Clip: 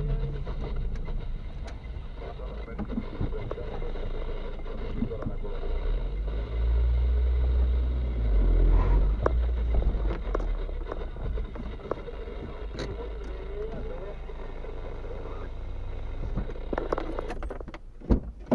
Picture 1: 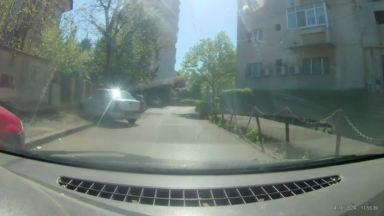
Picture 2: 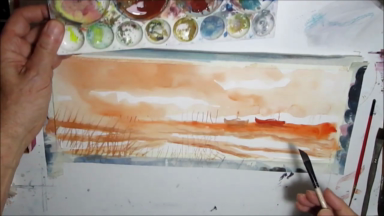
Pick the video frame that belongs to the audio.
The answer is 1